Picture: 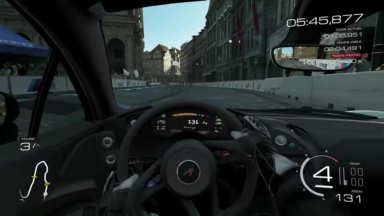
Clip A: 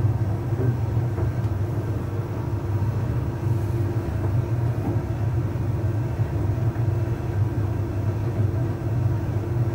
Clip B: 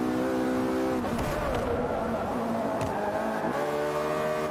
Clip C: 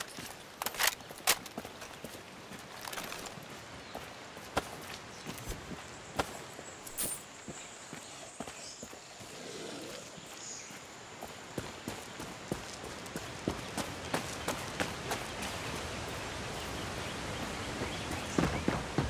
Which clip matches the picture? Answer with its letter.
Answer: B